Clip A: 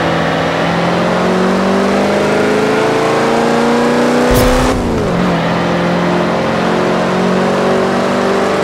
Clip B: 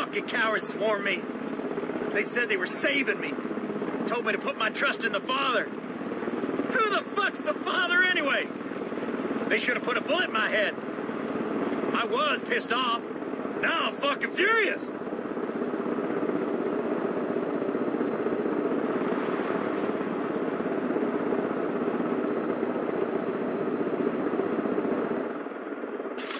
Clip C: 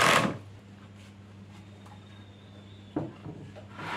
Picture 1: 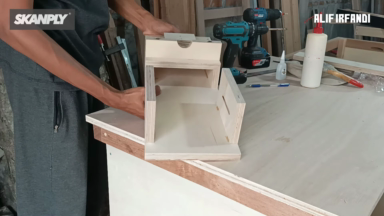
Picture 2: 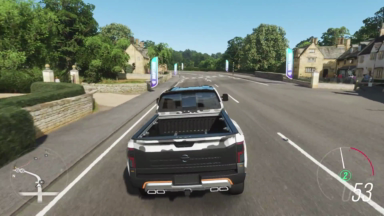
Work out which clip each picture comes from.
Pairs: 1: C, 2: A